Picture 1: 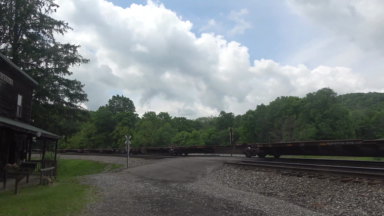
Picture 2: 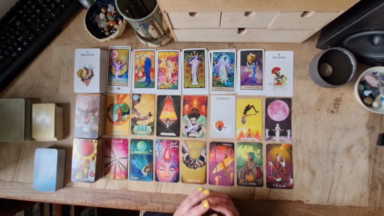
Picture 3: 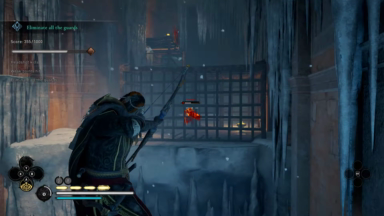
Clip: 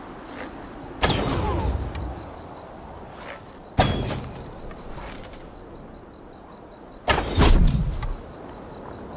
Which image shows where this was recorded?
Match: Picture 3